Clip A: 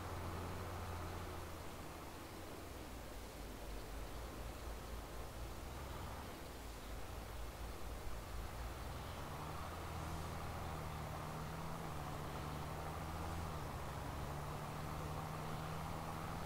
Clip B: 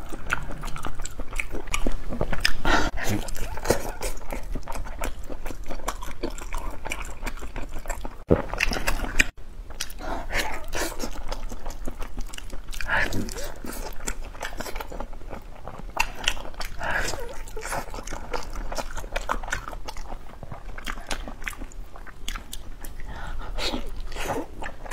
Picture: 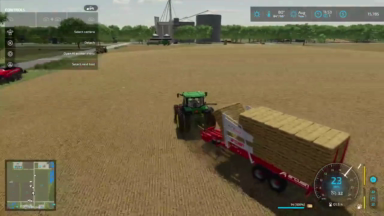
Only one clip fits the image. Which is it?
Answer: A